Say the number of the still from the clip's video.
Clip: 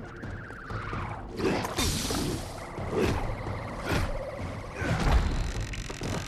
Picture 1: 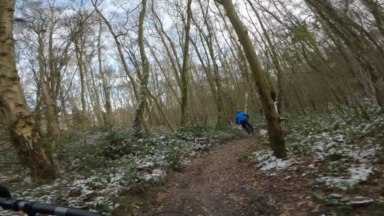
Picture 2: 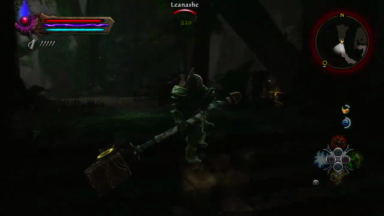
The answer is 2